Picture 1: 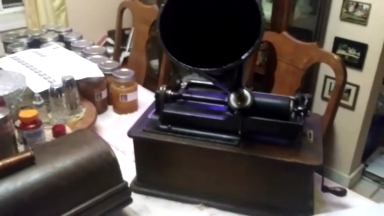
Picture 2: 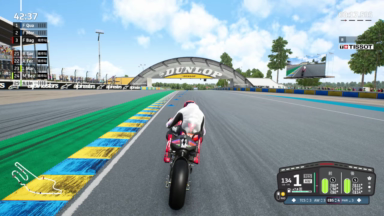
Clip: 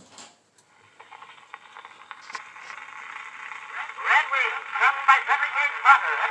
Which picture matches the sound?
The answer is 1